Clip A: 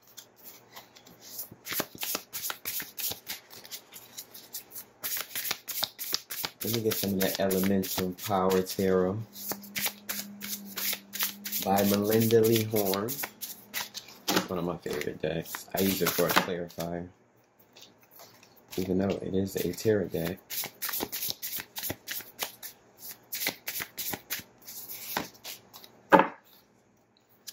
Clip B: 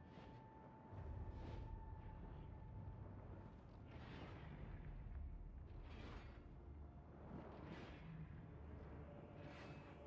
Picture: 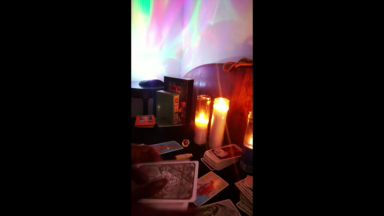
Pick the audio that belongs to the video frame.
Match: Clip A